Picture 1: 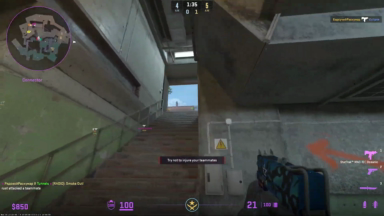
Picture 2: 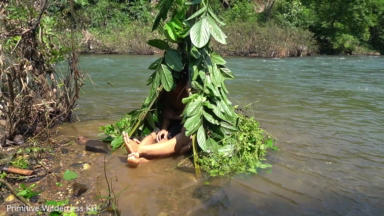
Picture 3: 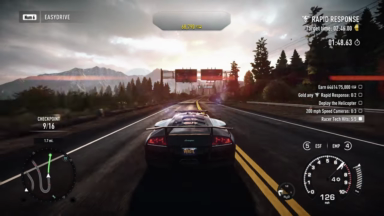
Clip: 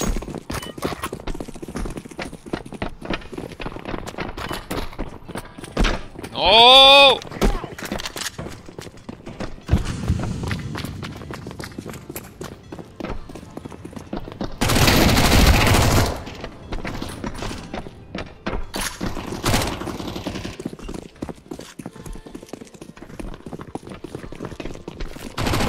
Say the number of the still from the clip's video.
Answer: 1